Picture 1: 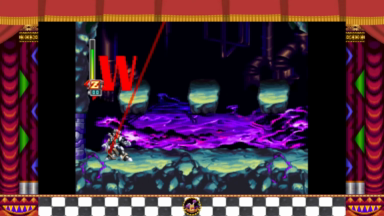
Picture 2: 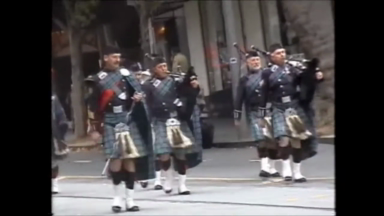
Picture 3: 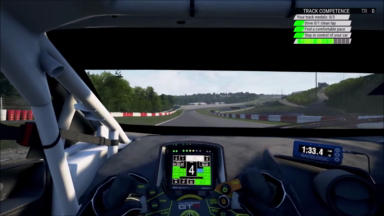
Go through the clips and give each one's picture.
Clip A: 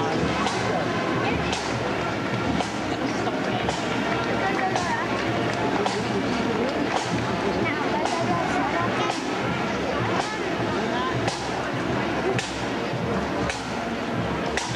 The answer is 2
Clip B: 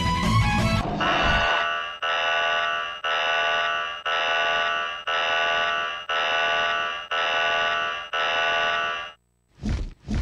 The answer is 1